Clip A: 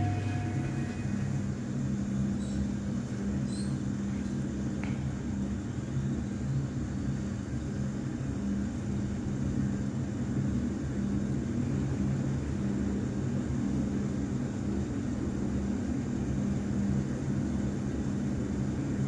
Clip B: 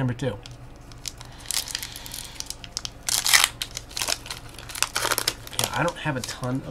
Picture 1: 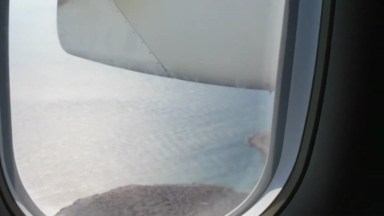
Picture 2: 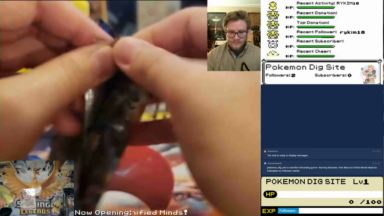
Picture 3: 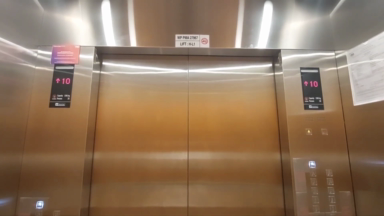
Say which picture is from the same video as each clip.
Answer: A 3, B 2